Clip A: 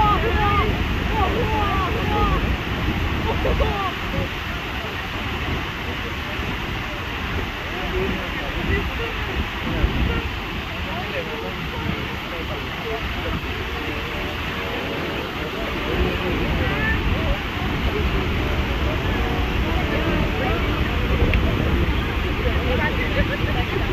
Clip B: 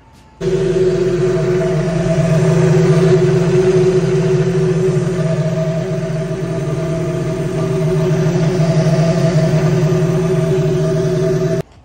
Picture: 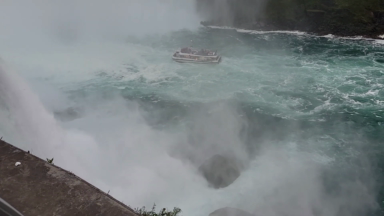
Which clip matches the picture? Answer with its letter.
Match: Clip A